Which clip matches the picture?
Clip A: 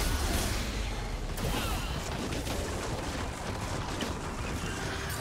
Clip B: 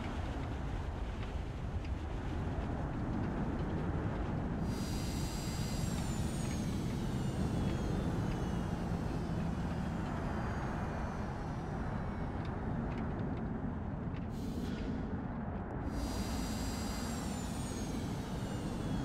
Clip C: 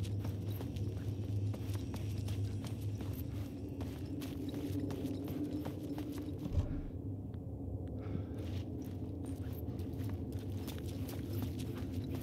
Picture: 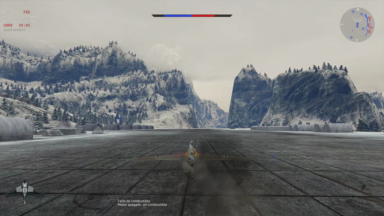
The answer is B